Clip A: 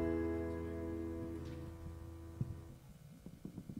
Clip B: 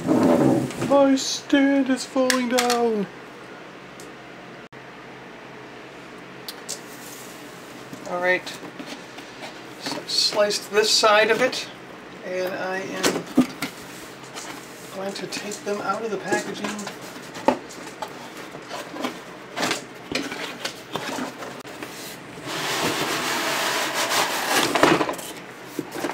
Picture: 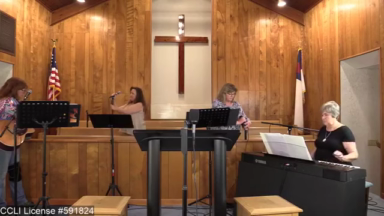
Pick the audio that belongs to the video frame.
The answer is A